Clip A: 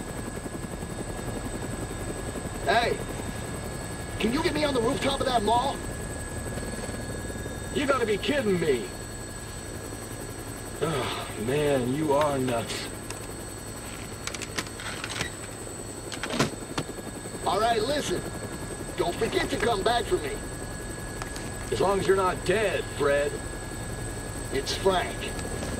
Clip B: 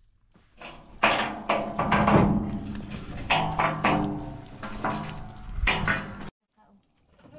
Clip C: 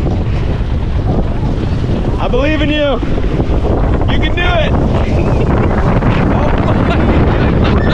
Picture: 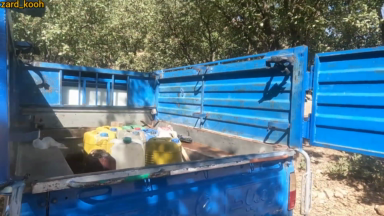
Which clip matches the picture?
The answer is B